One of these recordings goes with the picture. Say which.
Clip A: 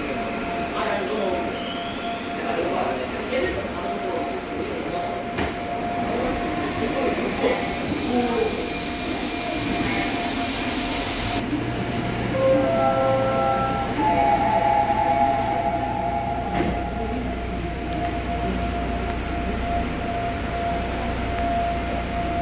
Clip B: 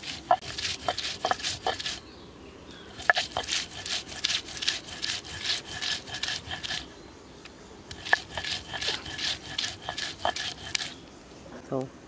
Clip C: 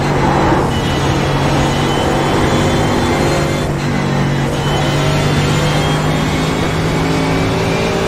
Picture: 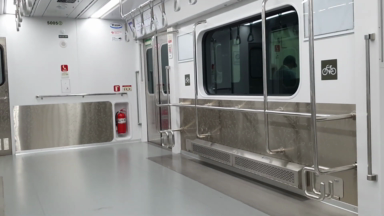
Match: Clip A